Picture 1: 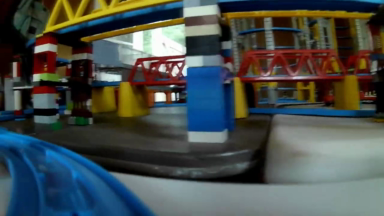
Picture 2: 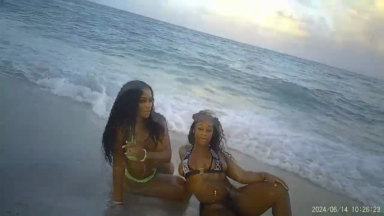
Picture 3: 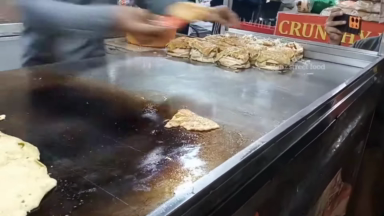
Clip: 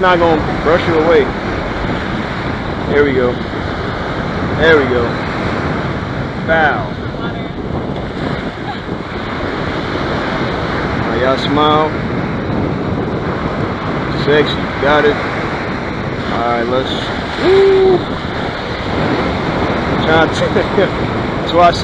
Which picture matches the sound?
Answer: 2